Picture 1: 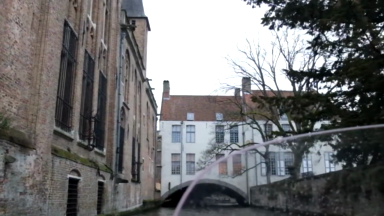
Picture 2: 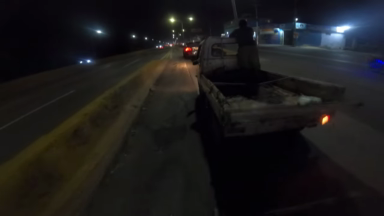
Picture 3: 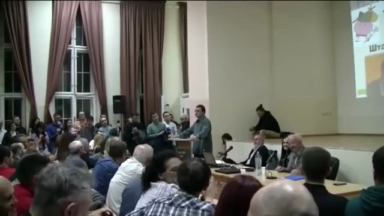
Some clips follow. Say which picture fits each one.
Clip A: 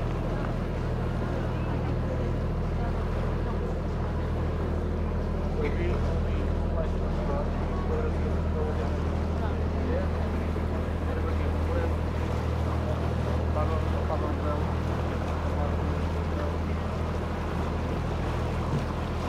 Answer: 1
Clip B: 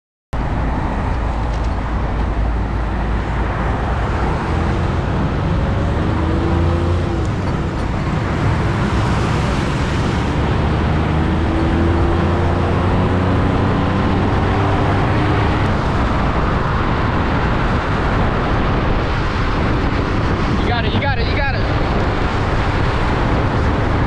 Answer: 2